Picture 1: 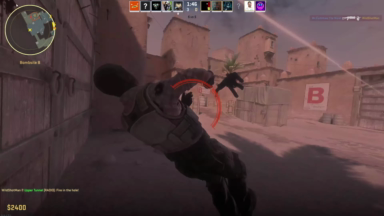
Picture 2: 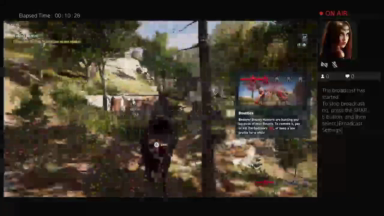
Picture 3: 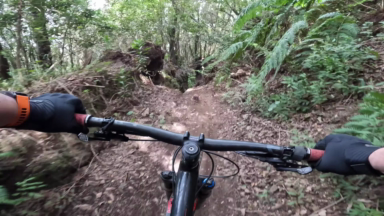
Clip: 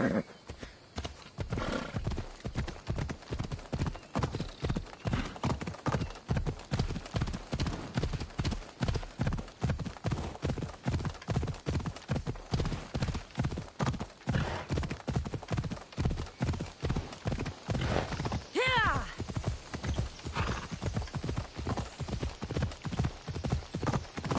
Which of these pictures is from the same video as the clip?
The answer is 2